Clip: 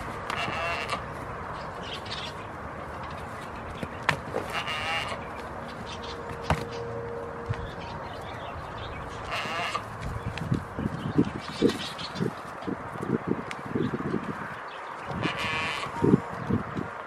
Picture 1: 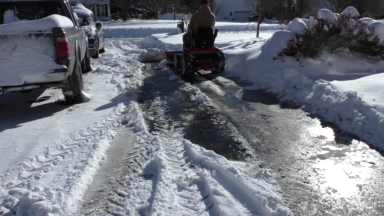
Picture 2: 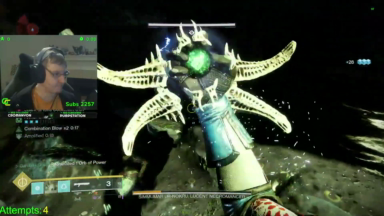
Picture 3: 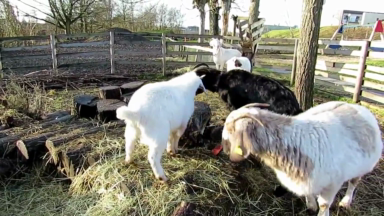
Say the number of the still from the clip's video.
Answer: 3